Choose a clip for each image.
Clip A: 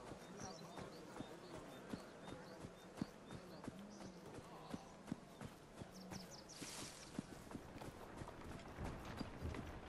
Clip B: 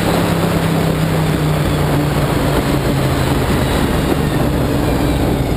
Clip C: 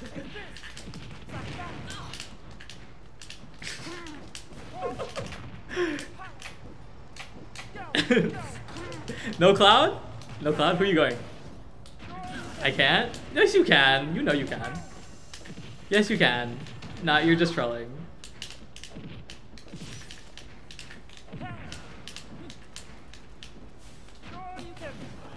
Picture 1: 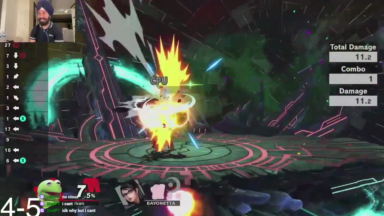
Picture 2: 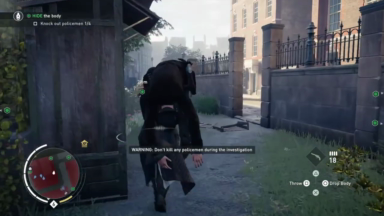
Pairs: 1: C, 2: A